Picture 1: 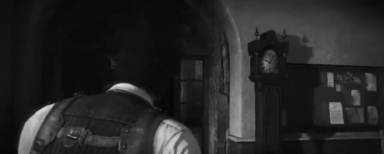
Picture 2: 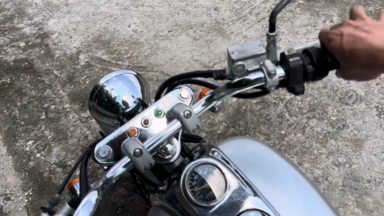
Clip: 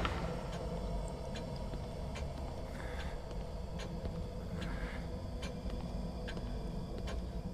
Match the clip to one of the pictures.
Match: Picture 1